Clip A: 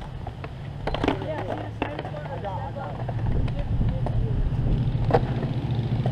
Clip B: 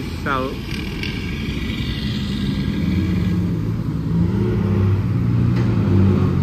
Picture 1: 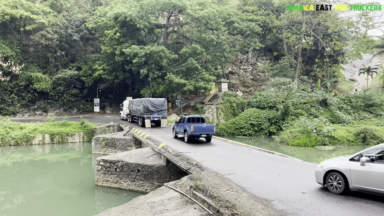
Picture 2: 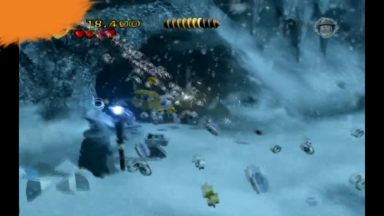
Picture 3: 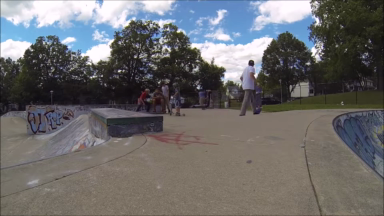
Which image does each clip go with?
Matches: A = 3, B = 1